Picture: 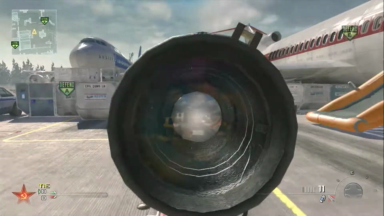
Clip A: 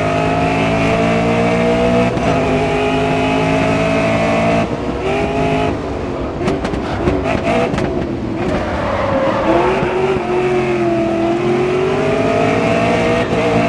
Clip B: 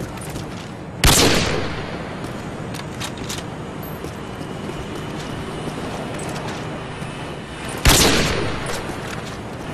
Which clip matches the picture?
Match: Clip B